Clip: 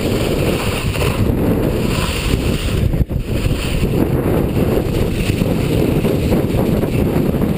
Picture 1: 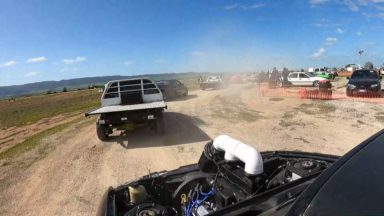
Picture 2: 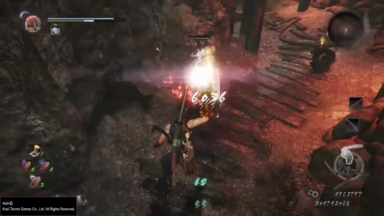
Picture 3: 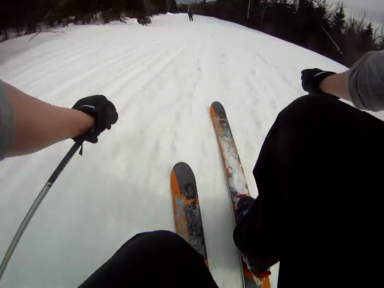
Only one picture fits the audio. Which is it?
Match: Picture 3